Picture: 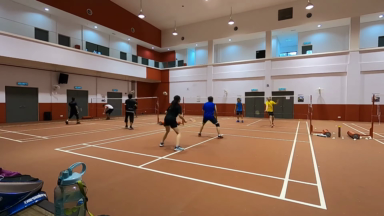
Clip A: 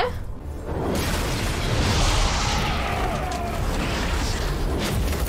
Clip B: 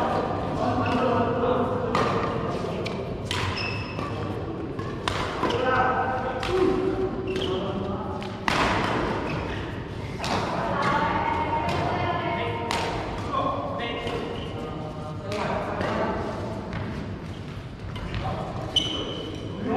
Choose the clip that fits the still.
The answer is B